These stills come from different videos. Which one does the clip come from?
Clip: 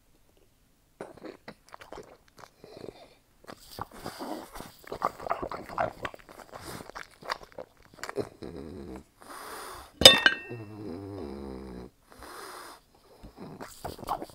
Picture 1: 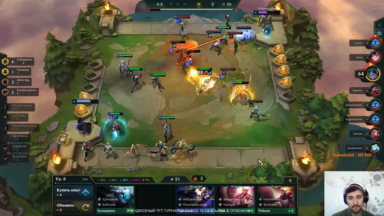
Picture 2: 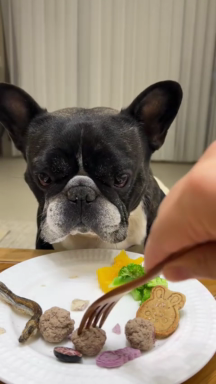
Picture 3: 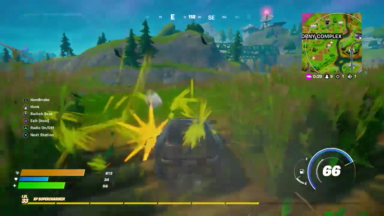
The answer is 2